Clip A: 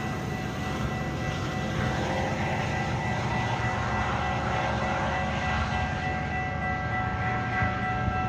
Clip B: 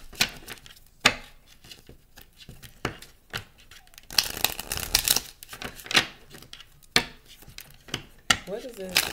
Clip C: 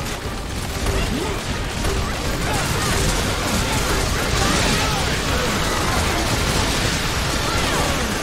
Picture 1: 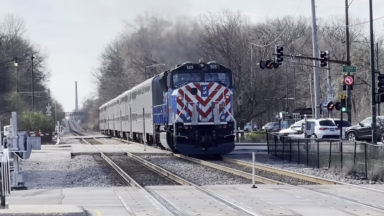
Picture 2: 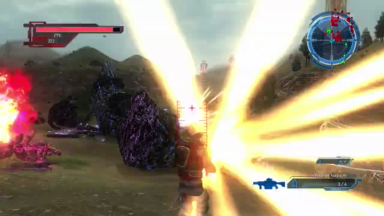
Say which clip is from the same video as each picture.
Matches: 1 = A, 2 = C